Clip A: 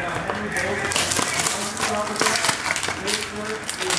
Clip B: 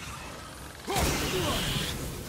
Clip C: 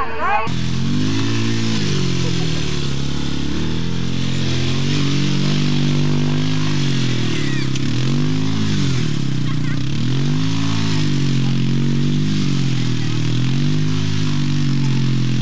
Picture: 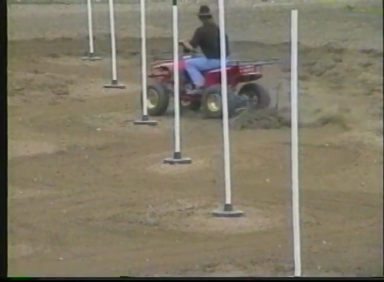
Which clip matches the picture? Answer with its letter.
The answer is C